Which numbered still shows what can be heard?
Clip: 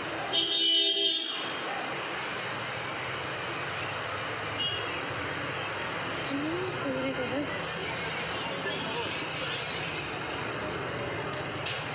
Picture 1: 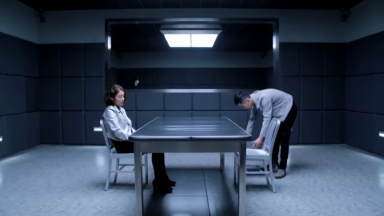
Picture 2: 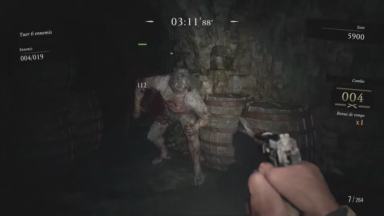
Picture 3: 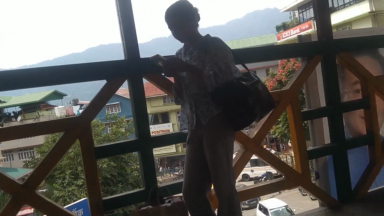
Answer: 3